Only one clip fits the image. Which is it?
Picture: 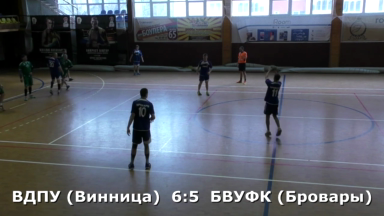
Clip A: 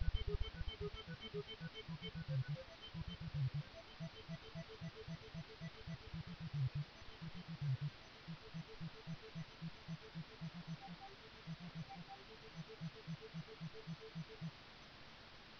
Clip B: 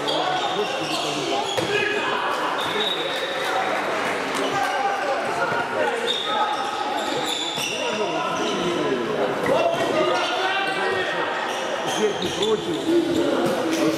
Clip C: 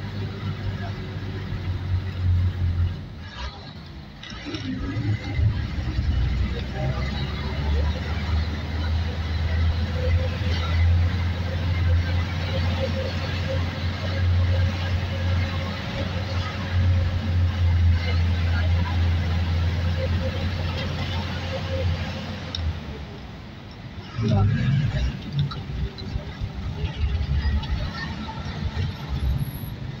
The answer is B